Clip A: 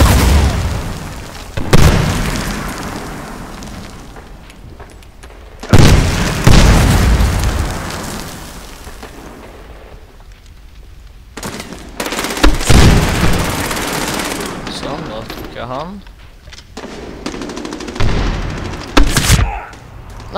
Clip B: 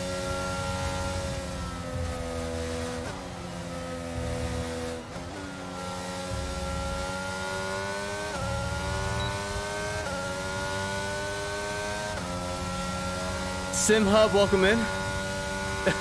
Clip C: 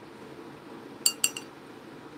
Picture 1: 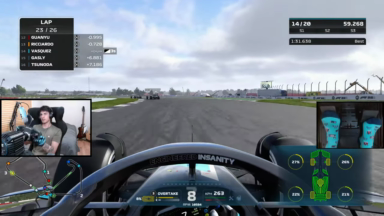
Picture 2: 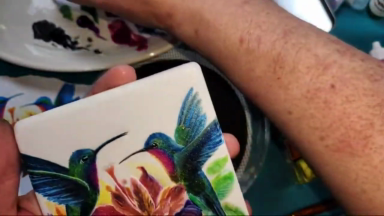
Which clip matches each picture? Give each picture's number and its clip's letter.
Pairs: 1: B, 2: C